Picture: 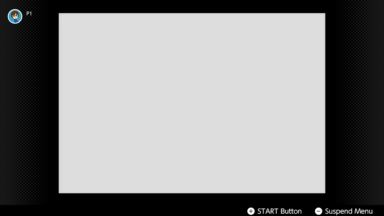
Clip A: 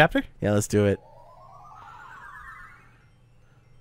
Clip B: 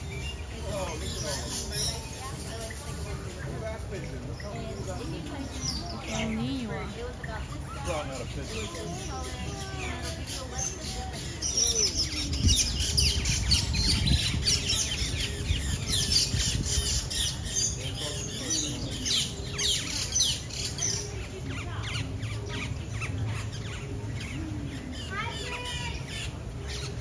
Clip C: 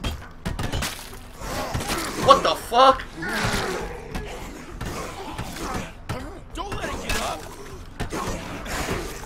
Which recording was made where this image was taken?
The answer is A